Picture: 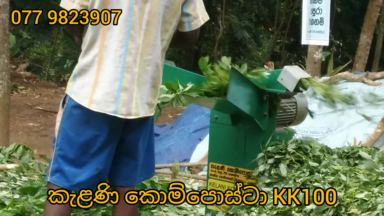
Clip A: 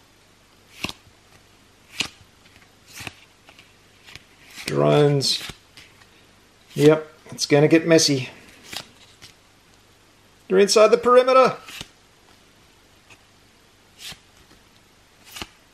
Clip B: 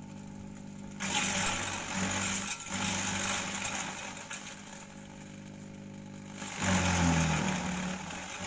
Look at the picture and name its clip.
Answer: B